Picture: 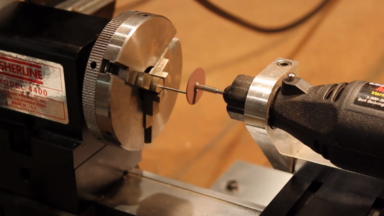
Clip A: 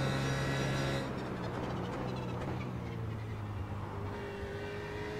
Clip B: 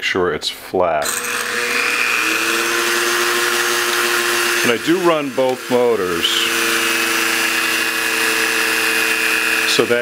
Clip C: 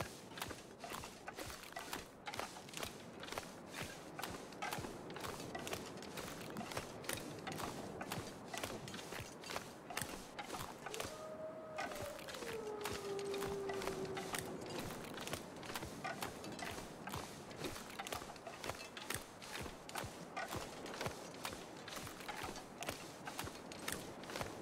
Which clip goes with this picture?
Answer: B